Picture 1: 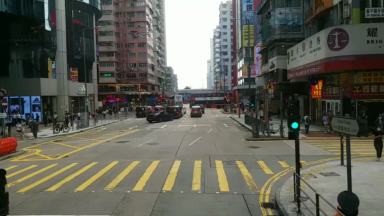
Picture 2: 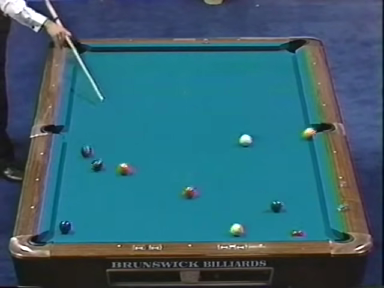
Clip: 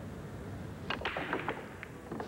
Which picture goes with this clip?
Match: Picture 2